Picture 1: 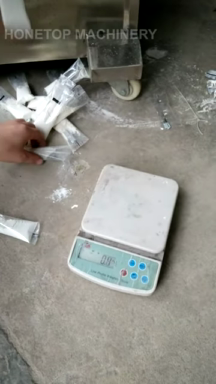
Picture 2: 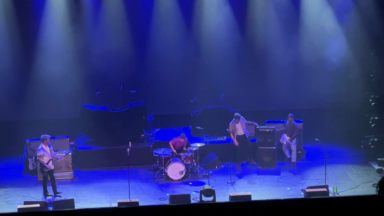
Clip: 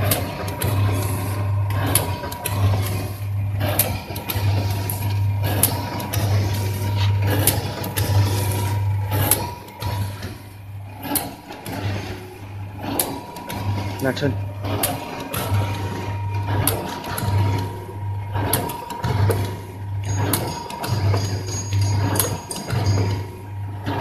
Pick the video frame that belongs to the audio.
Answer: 1